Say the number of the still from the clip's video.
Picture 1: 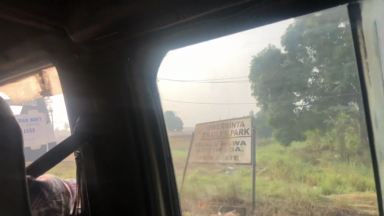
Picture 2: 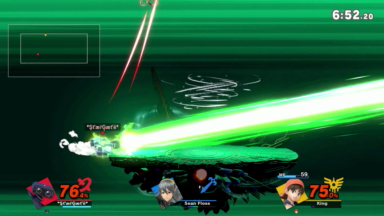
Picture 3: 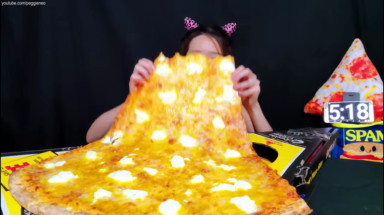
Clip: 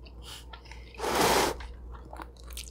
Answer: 3